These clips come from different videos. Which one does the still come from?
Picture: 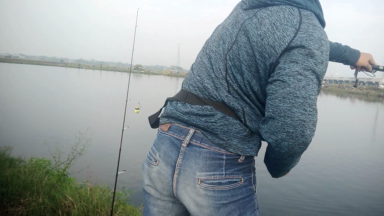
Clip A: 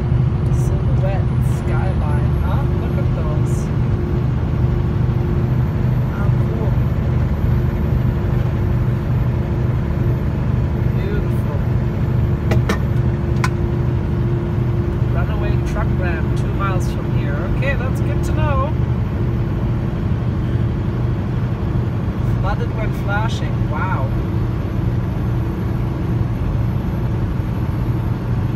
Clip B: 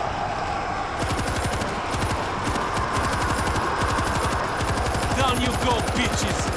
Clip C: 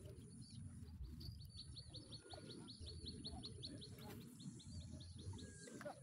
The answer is C